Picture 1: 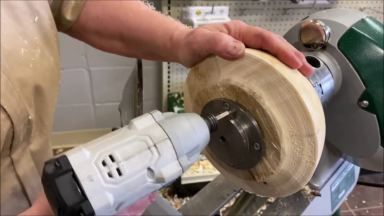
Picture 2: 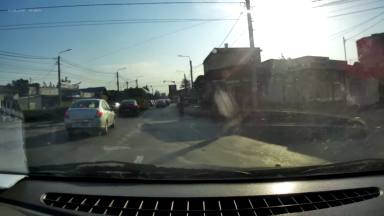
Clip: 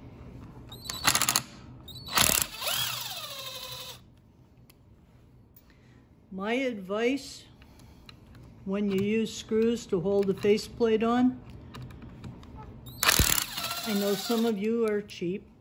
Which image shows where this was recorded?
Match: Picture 1